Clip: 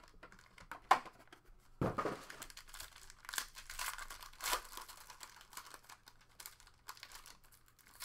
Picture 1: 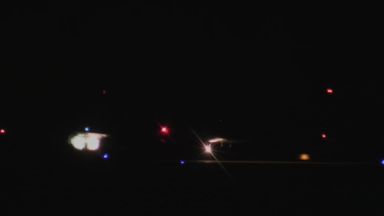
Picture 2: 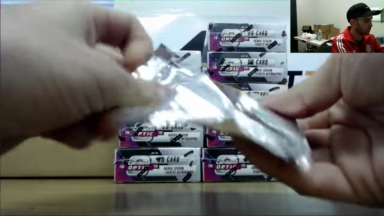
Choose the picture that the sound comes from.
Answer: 2